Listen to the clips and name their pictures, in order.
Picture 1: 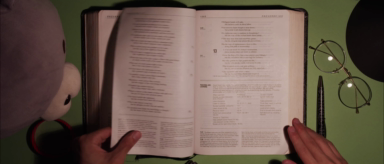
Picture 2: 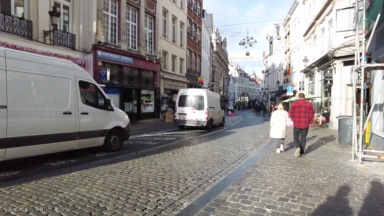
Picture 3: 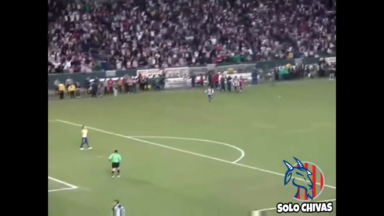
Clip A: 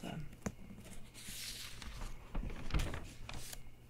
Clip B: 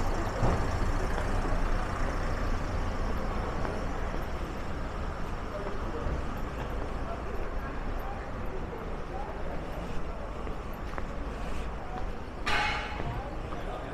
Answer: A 1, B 2